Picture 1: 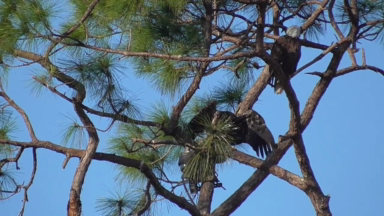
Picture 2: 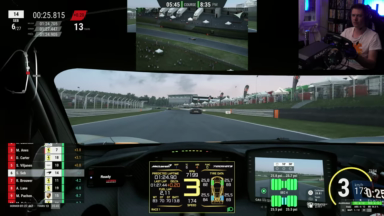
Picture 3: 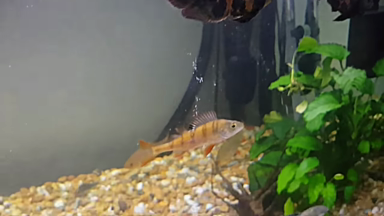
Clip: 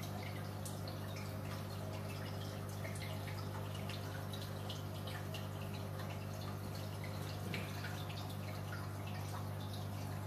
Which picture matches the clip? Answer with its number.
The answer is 3